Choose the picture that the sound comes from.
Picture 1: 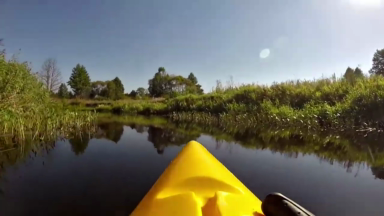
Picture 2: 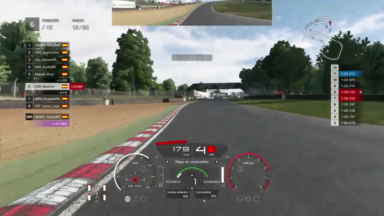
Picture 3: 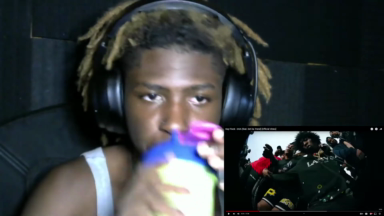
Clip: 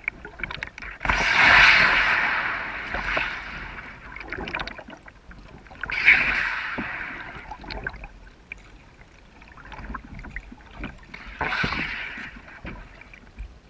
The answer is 1